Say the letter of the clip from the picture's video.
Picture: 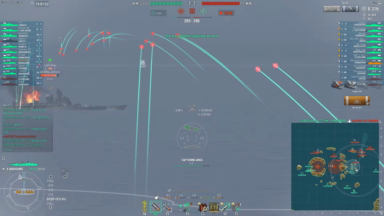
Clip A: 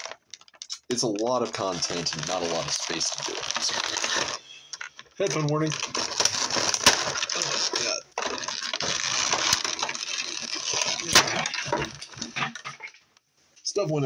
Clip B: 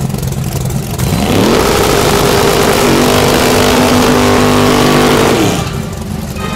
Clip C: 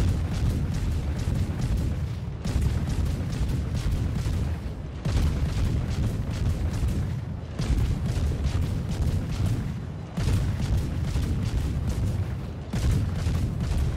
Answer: C